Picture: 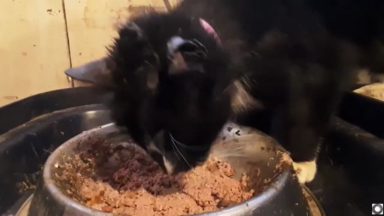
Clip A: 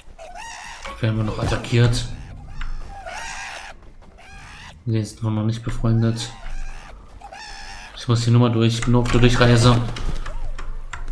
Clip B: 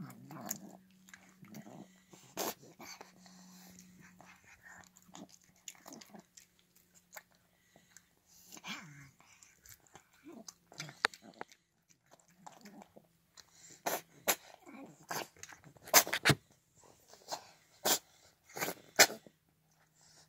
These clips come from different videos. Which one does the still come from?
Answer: B